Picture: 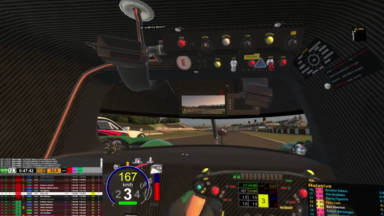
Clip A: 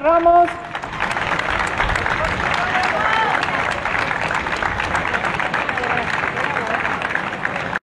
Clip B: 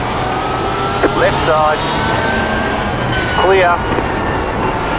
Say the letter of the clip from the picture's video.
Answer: B